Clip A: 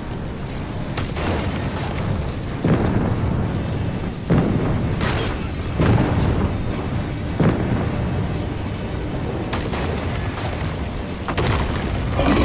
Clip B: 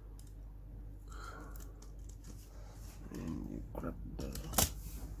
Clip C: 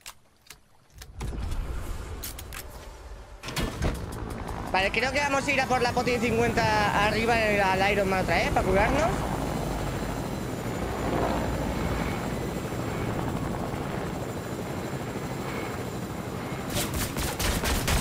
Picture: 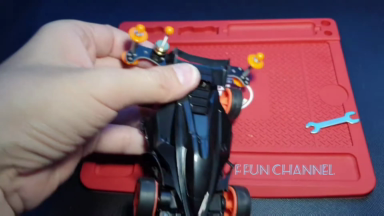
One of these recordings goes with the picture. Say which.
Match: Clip B